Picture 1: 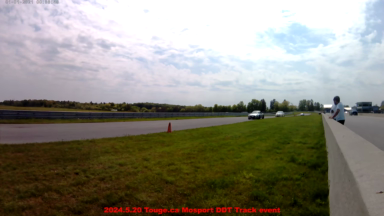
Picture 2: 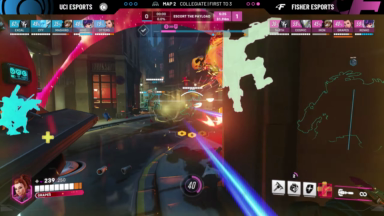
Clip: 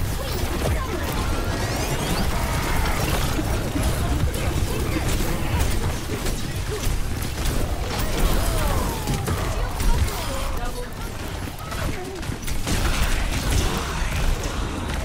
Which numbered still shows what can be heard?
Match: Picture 2